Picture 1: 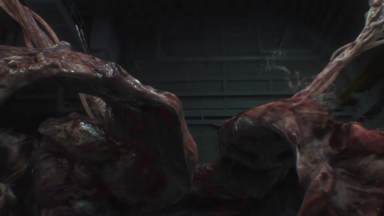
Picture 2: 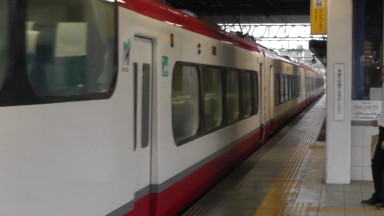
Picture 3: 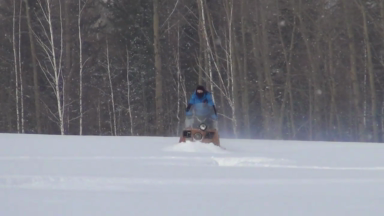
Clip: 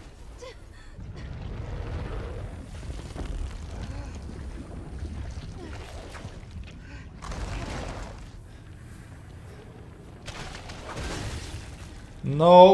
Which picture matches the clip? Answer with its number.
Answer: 1